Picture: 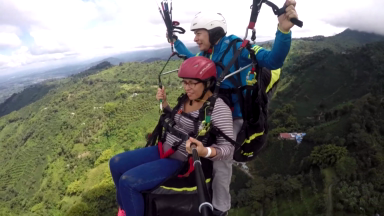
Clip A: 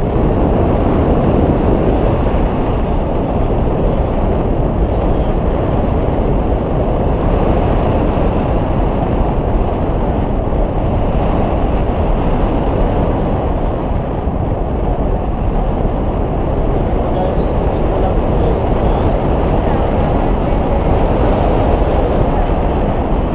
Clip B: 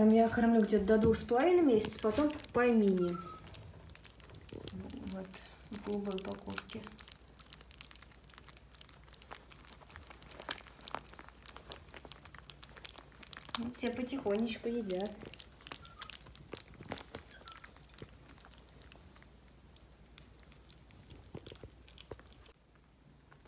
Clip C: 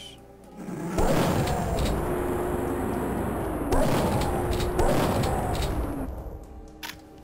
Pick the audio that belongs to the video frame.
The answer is A